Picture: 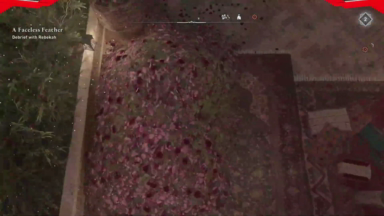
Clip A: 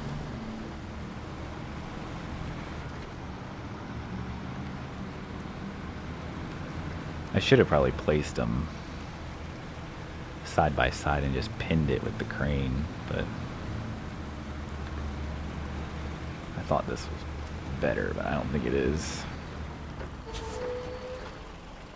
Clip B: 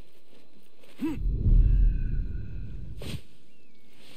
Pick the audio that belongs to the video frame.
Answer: B